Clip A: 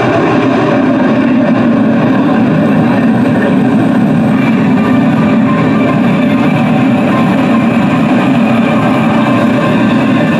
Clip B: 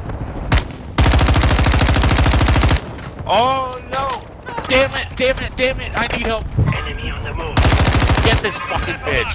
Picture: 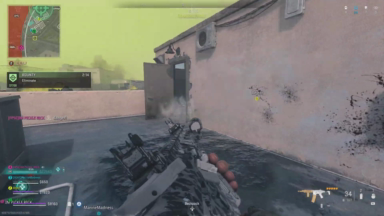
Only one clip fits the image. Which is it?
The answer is B